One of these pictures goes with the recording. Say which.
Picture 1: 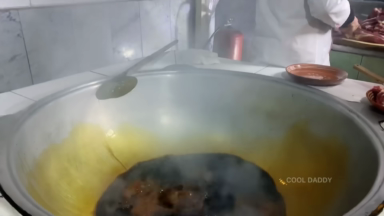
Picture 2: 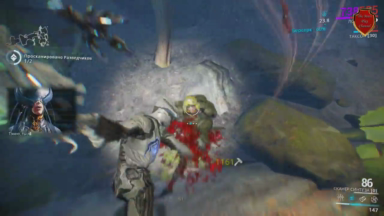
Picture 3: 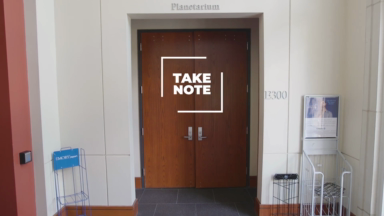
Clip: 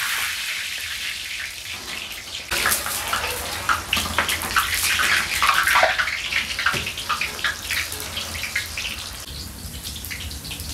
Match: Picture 1